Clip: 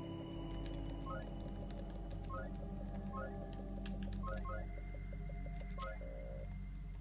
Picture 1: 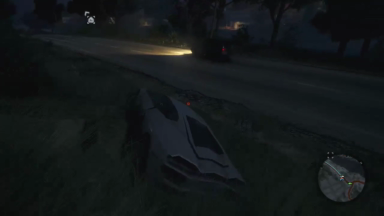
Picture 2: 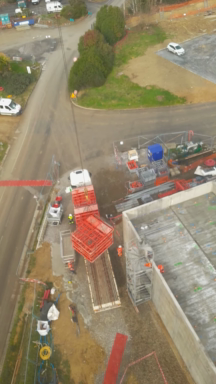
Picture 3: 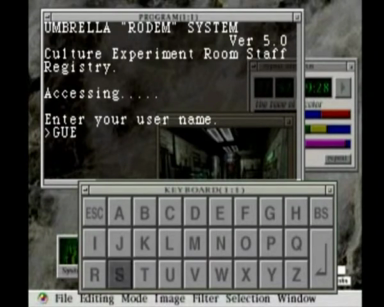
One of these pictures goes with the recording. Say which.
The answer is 3